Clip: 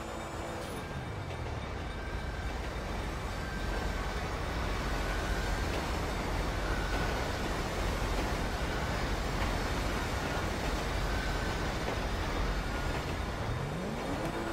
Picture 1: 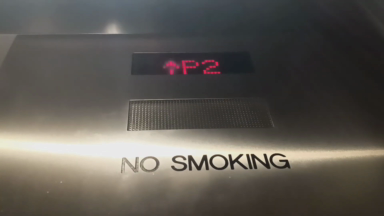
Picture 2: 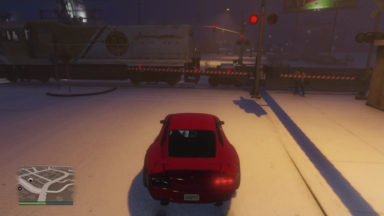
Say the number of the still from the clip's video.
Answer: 2